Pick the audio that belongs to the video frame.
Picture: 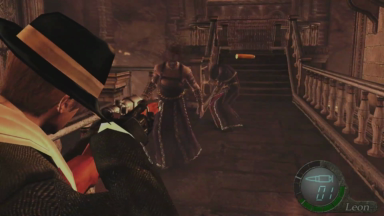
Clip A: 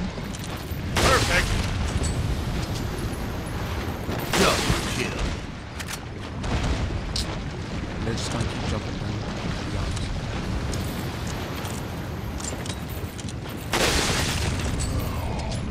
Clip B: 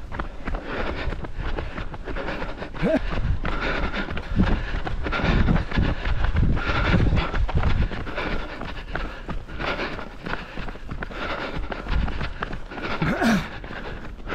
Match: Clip A